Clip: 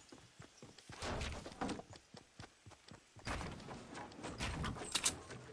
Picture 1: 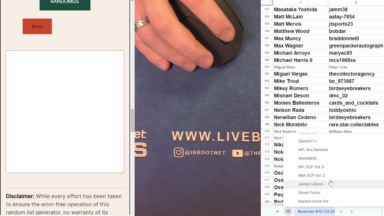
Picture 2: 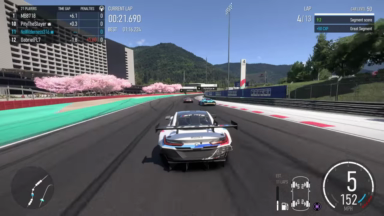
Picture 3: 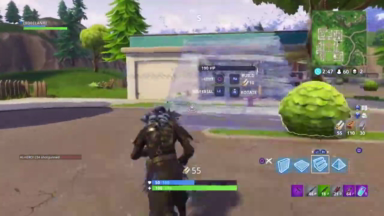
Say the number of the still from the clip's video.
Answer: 3